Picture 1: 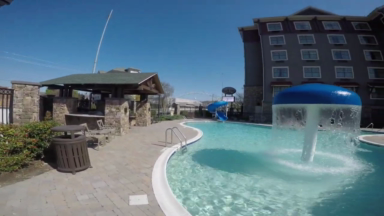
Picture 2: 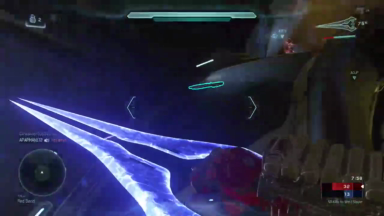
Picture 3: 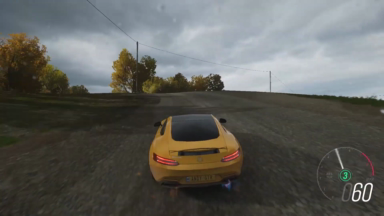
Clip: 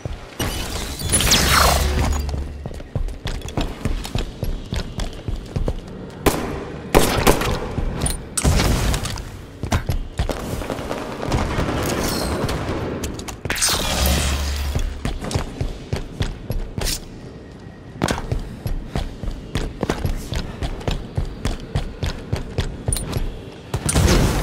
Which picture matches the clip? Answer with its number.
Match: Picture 2